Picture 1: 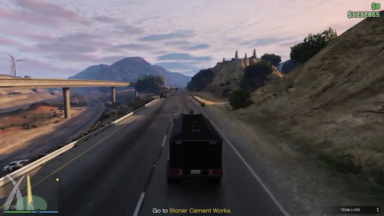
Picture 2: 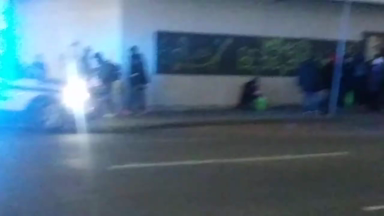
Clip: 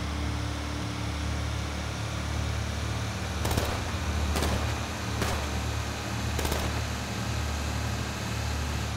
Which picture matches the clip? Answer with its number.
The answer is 1